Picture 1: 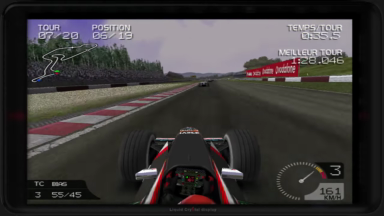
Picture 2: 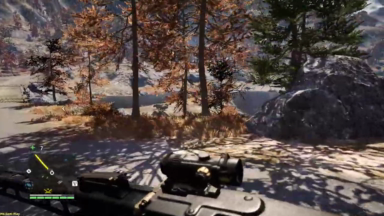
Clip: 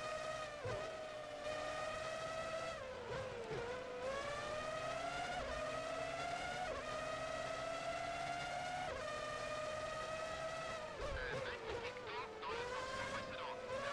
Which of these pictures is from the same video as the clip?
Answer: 1